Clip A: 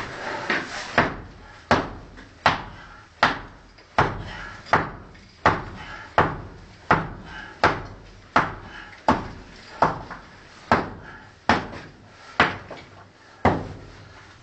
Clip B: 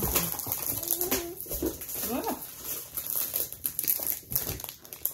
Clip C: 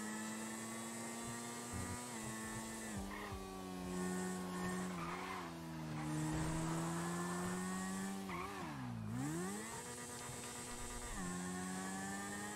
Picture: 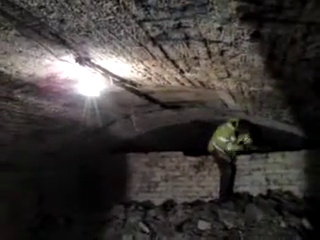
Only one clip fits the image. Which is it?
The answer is A